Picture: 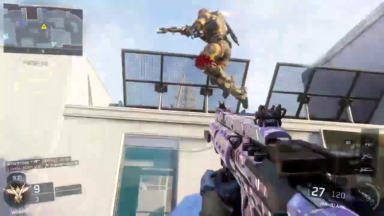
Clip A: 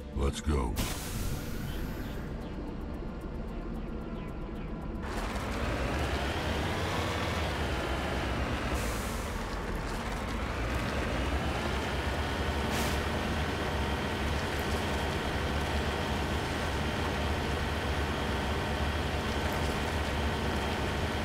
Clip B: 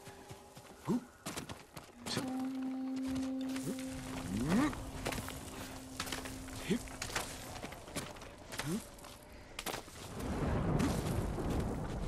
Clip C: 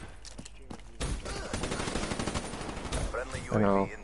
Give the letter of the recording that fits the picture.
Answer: C